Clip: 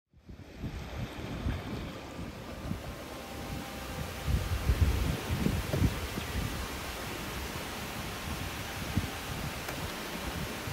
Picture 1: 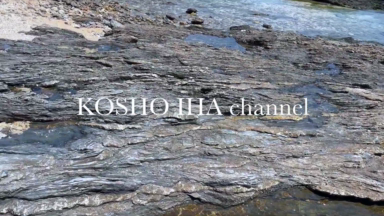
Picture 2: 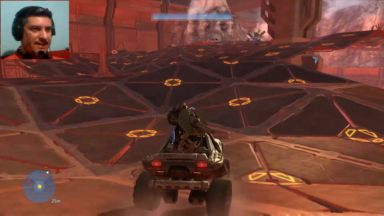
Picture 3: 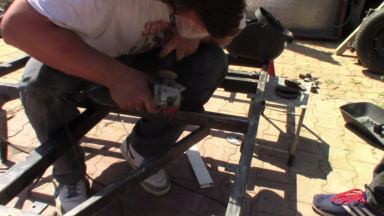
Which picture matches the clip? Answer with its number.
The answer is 1